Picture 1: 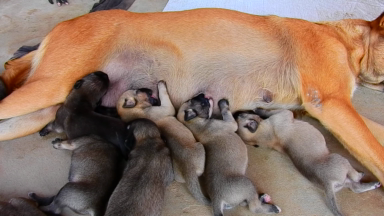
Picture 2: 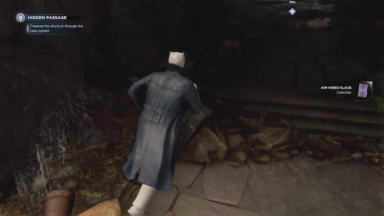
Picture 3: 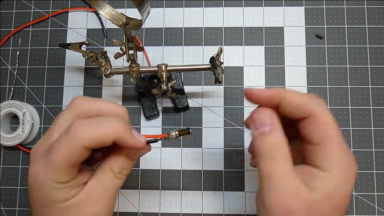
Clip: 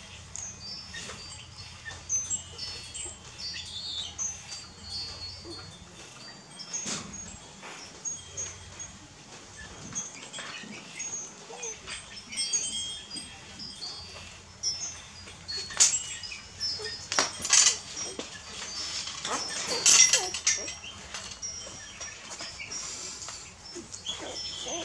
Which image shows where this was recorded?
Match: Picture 1